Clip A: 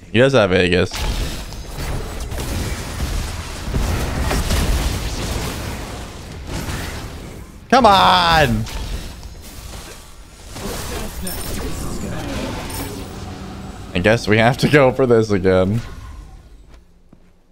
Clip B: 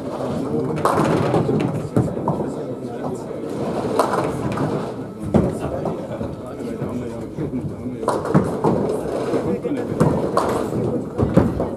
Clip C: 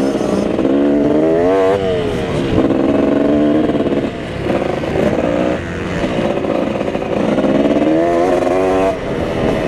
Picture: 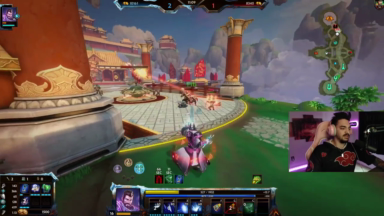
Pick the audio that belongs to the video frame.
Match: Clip A